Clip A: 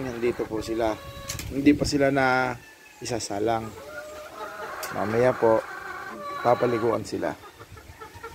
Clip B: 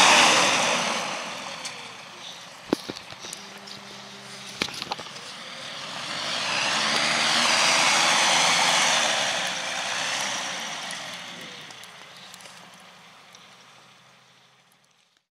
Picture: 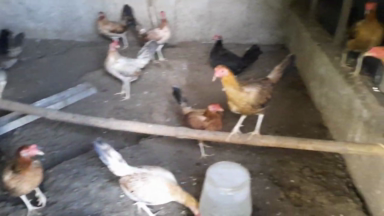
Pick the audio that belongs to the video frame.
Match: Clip A